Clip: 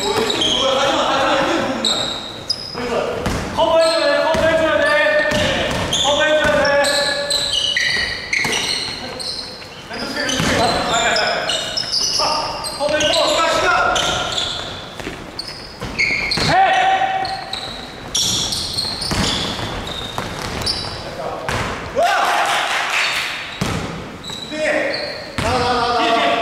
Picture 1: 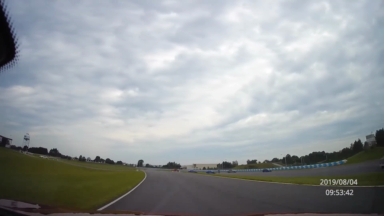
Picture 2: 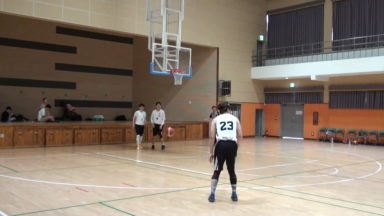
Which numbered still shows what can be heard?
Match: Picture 2